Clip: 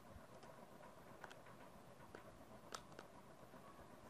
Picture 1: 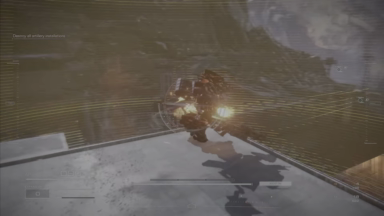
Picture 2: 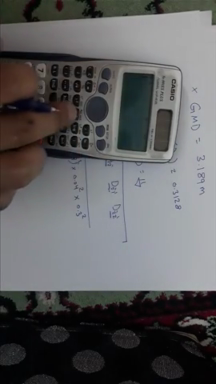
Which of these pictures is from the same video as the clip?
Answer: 2